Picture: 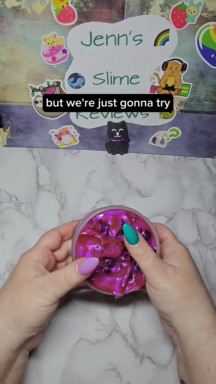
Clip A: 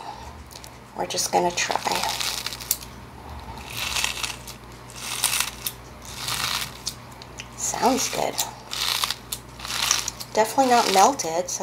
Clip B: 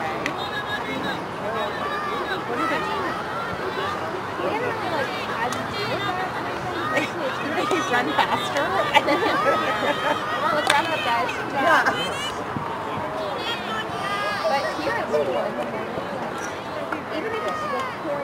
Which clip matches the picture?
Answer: A